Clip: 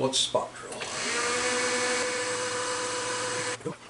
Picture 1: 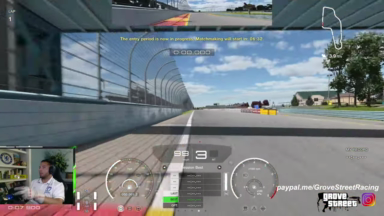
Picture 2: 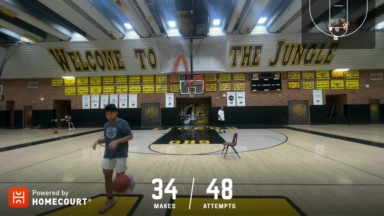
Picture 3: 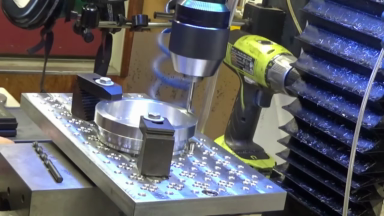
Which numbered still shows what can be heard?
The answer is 3